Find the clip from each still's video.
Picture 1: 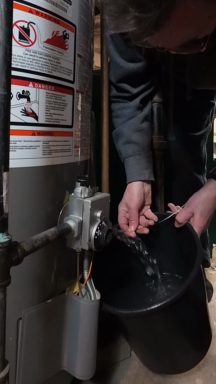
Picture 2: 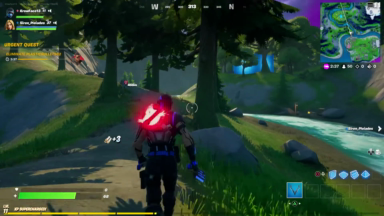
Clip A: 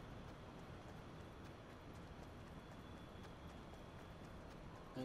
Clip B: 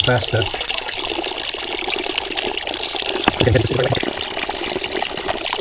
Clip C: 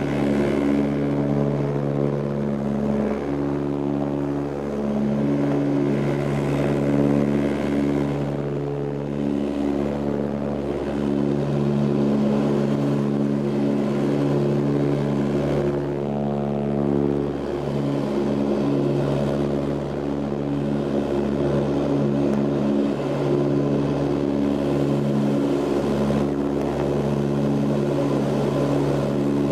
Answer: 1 B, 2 A